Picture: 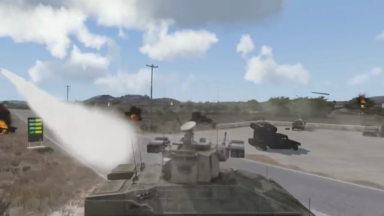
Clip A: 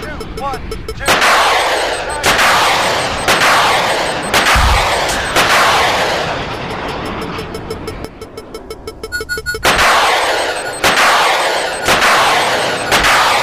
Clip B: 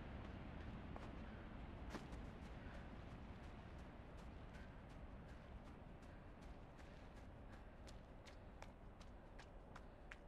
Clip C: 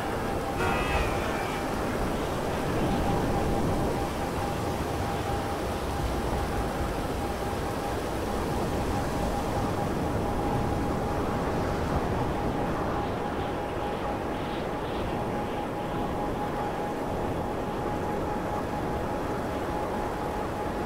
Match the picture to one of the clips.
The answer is A